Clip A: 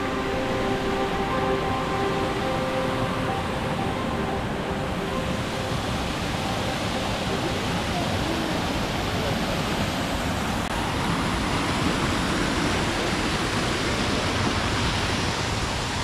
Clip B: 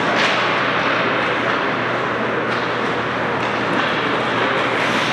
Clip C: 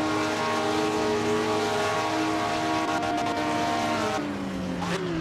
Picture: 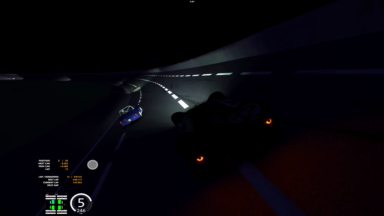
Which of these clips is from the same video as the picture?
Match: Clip C